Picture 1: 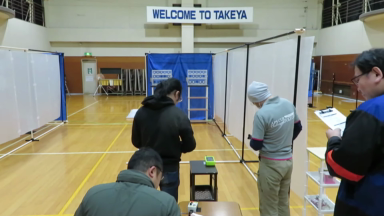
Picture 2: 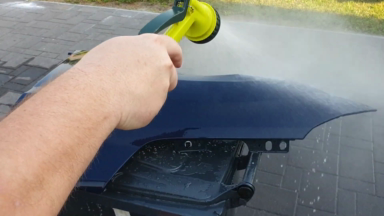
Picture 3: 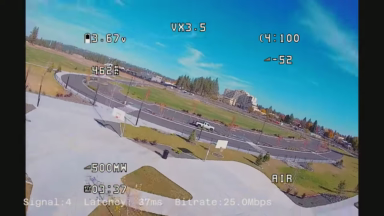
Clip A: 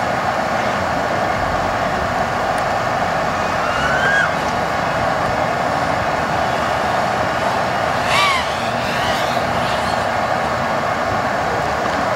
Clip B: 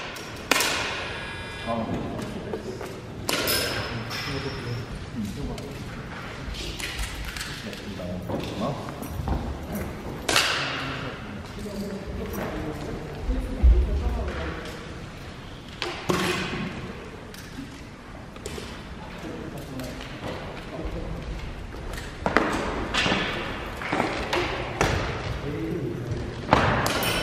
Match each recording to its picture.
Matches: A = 3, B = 1